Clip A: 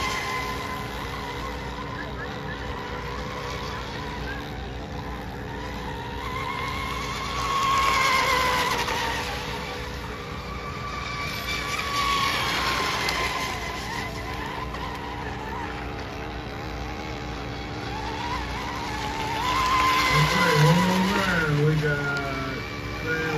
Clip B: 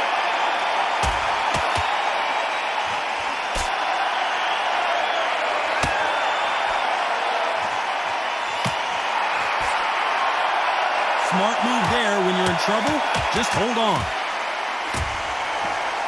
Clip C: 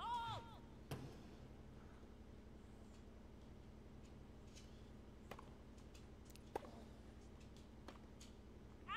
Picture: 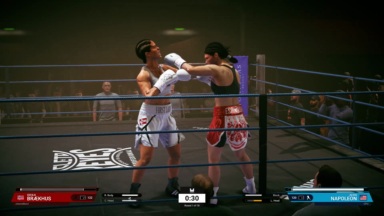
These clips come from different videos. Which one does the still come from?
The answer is B